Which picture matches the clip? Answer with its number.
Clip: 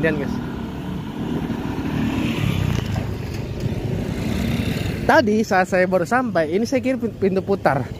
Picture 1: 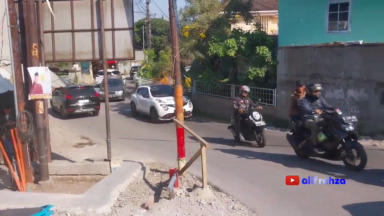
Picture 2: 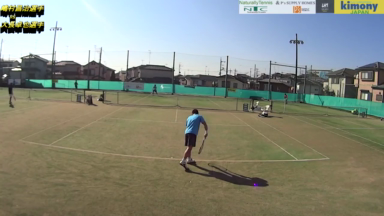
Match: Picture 1